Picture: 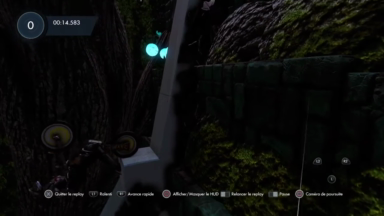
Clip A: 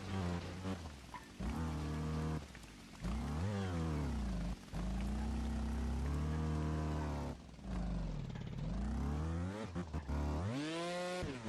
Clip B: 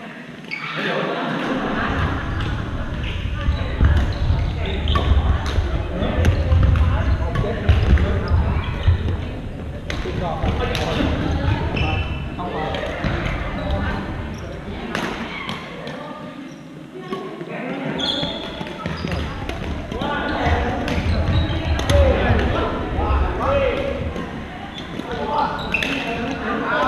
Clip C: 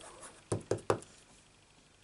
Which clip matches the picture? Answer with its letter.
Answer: A